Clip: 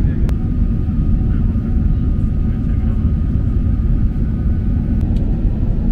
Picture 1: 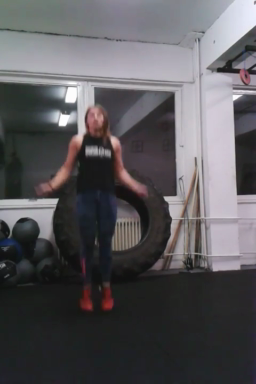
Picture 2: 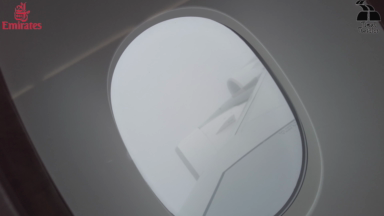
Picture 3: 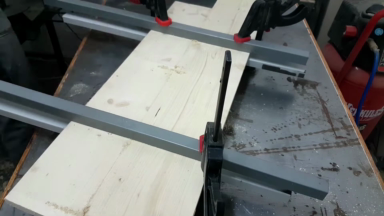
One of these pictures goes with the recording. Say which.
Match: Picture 2